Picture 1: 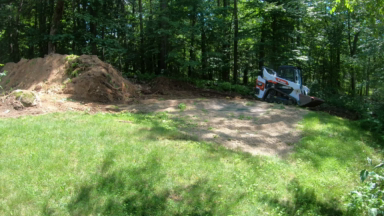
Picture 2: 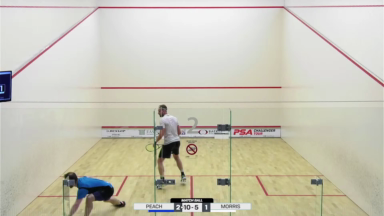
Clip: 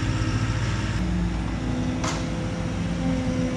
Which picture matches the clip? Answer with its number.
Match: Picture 1